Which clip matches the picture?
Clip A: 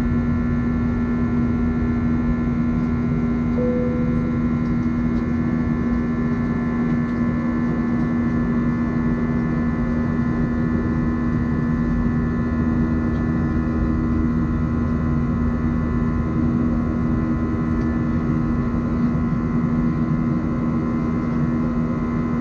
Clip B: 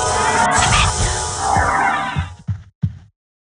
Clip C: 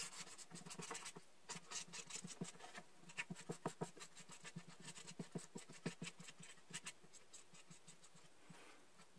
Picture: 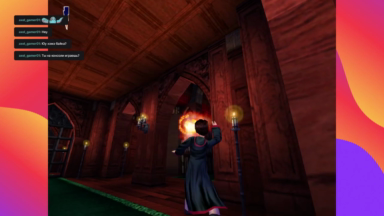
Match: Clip B